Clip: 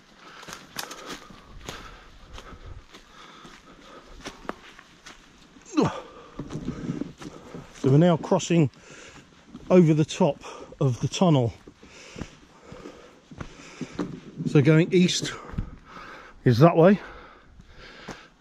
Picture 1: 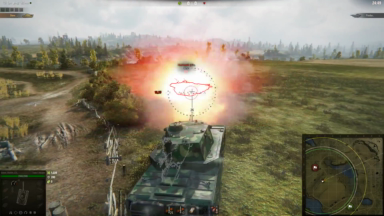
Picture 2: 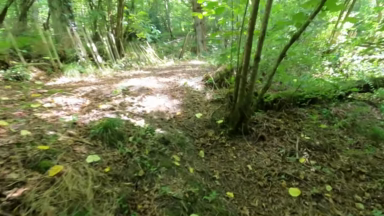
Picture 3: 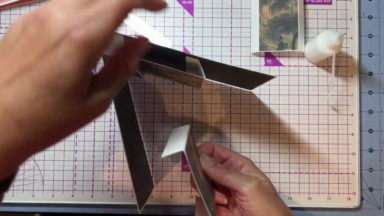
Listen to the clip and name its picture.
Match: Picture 2